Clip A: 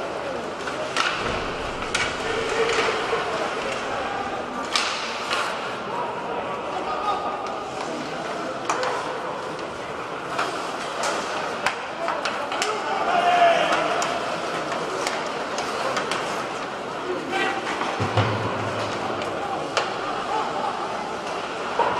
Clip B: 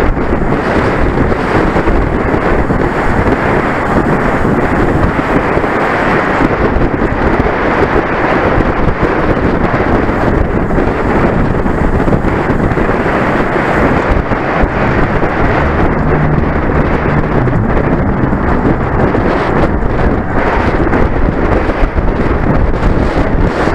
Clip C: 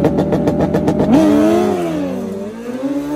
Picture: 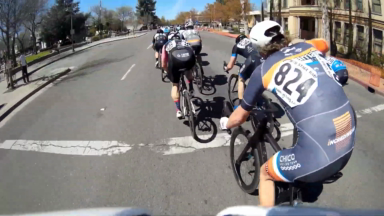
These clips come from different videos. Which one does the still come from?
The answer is B